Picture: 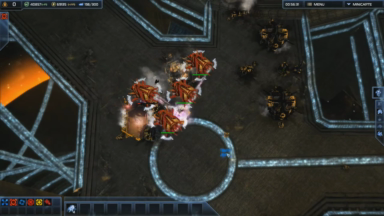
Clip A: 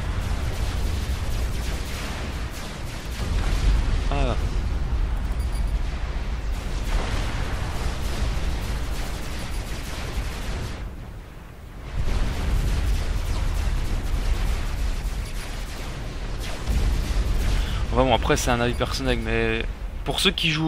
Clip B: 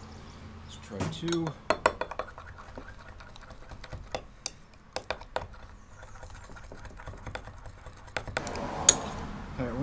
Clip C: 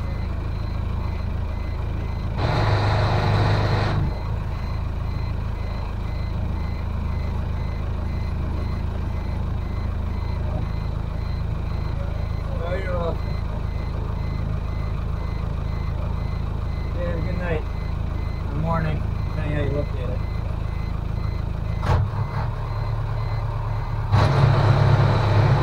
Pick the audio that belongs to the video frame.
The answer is A